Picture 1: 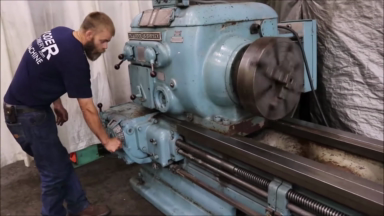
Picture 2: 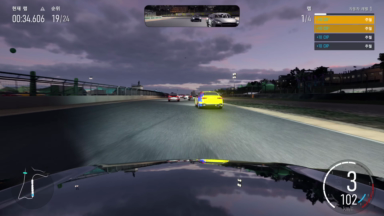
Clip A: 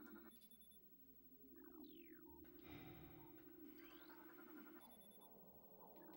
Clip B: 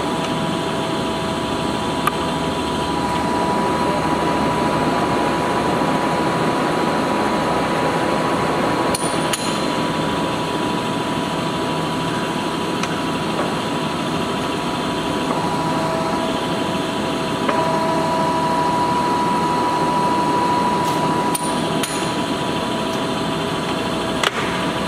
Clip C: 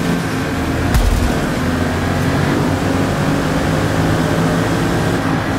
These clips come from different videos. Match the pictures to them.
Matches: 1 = B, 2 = C